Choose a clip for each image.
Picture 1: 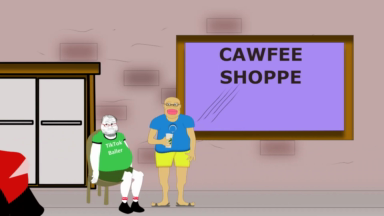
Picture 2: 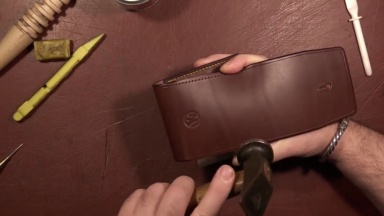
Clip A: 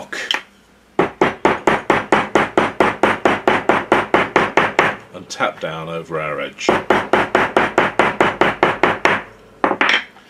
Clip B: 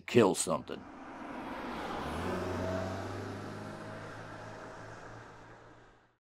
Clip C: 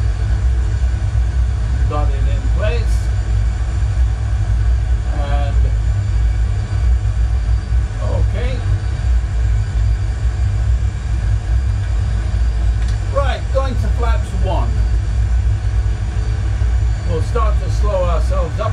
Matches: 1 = B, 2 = A